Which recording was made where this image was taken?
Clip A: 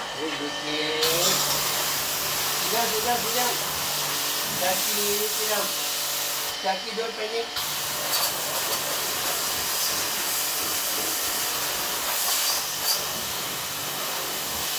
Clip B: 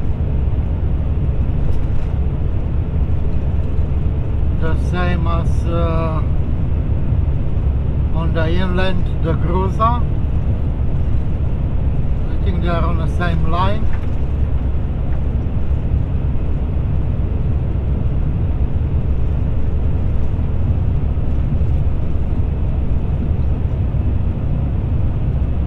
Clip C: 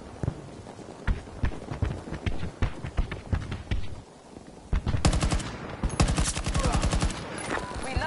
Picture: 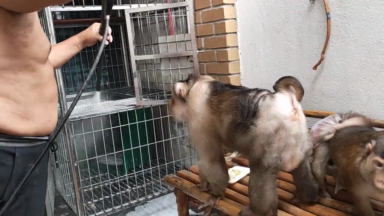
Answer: A